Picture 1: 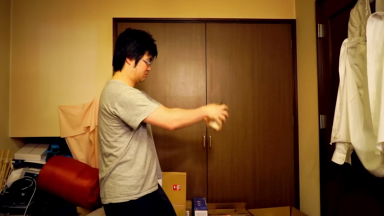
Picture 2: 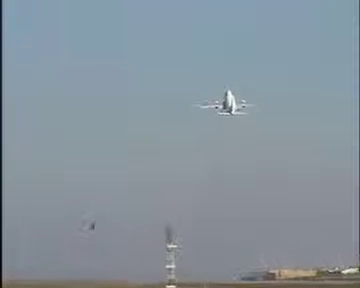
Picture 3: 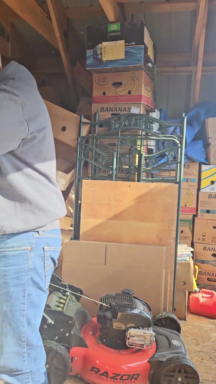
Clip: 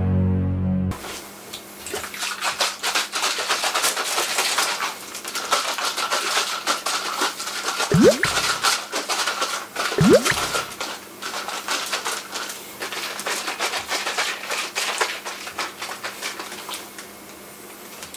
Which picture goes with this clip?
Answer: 1